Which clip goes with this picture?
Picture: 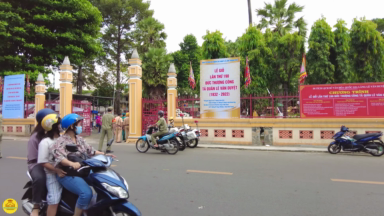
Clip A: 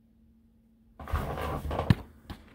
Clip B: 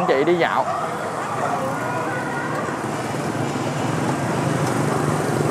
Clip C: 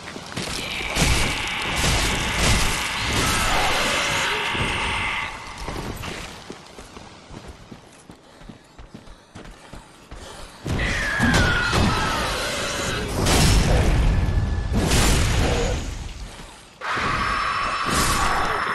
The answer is B